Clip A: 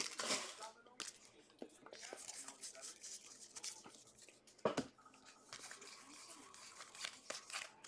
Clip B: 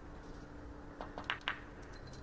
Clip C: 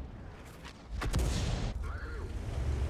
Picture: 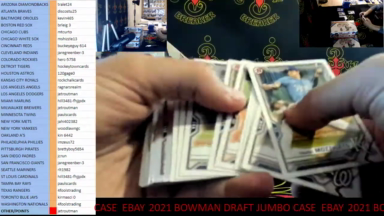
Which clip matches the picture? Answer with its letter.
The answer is A